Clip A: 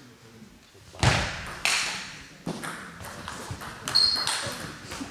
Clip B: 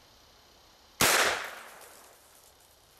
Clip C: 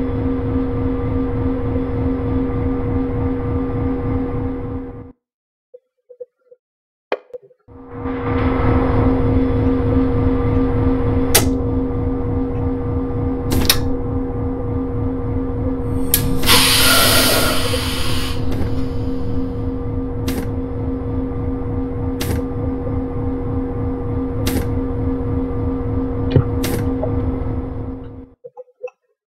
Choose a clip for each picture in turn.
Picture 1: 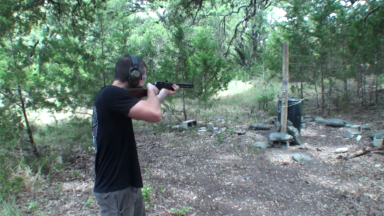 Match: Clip B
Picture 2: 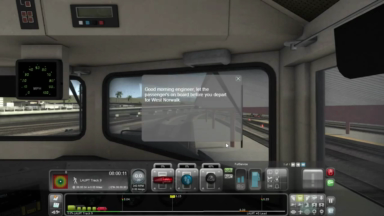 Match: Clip C